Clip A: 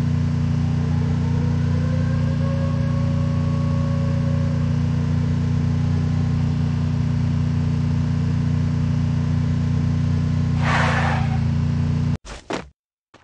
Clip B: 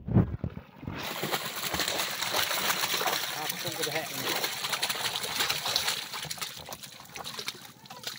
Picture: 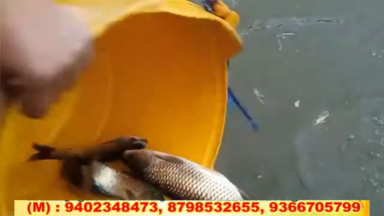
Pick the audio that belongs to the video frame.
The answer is B